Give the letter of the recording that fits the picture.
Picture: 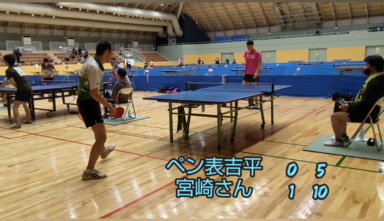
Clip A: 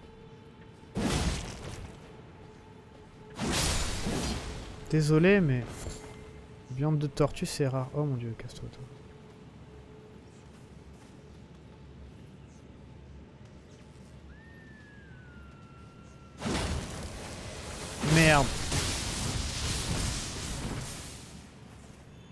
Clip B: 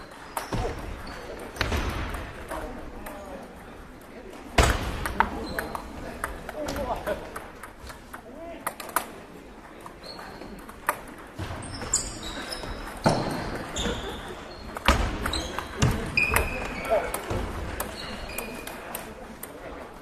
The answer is B